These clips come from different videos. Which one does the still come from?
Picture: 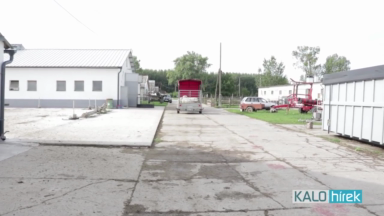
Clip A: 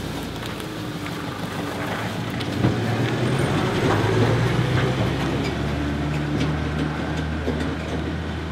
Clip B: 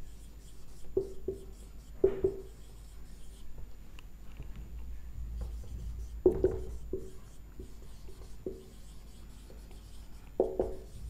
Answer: A